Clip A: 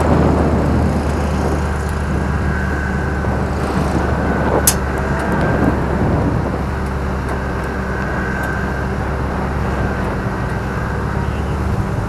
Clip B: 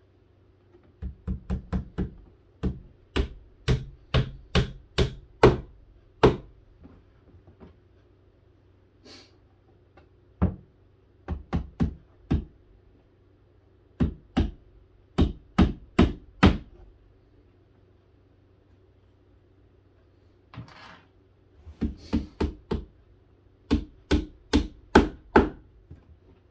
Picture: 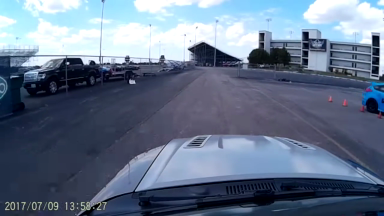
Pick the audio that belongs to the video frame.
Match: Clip A